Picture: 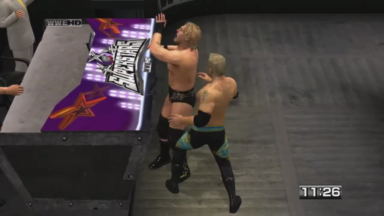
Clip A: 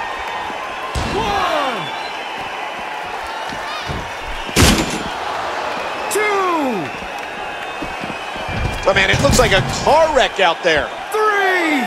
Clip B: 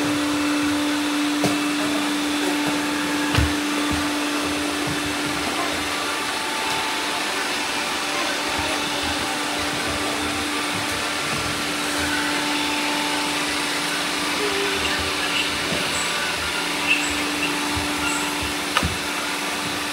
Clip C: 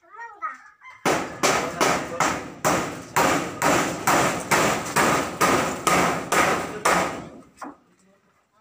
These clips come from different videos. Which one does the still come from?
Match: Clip A